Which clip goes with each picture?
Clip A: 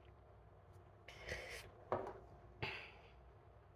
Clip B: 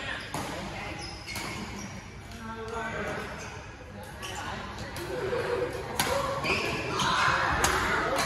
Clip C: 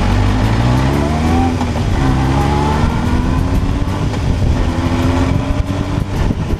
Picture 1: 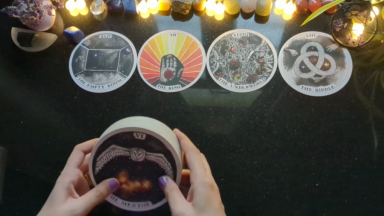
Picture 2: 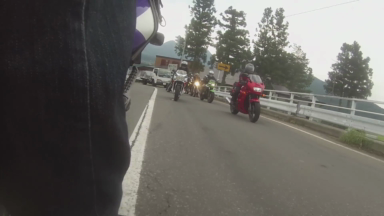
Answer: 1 A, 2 C